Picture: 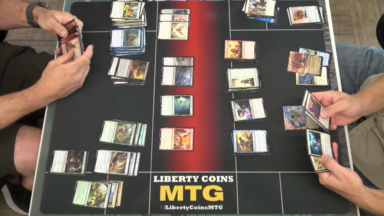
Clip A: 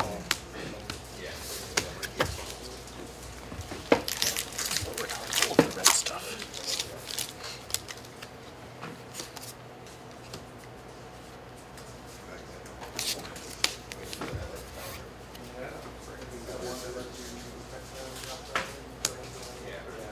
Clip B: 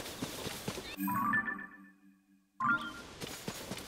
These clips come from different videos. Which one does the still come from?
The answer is A